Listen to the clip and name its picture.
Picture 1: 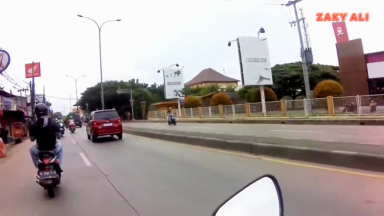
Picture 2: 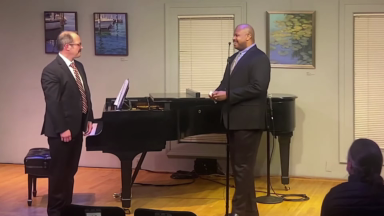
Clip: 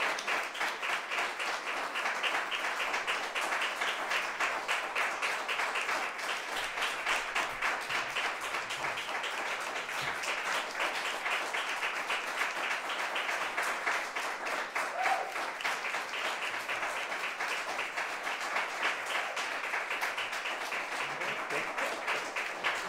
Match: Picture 2